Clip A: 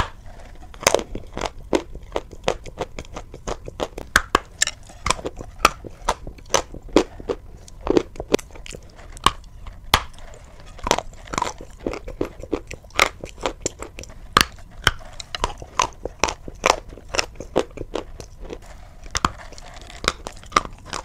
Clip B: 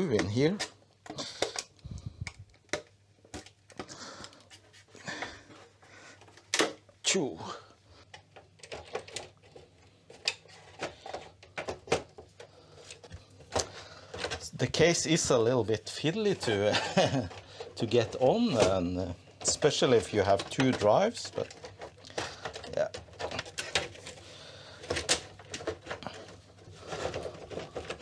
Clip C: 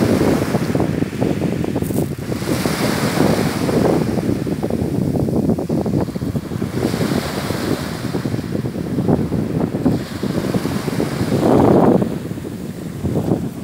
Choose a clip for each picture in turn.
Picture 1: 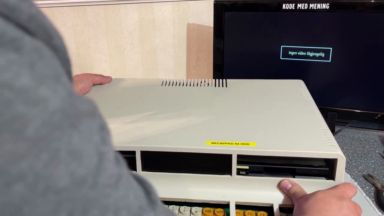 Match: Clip B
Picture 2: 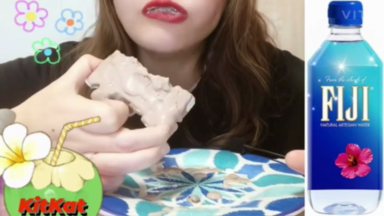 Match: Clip A